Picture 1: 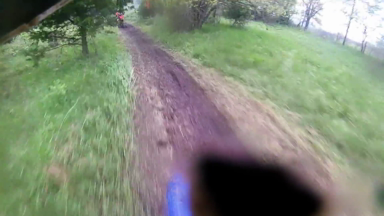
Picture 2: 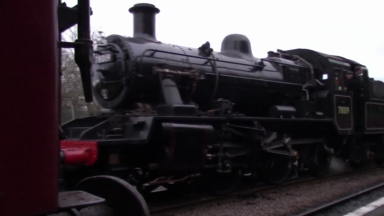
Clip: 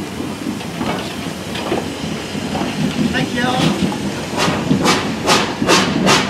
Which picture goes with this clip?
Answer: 2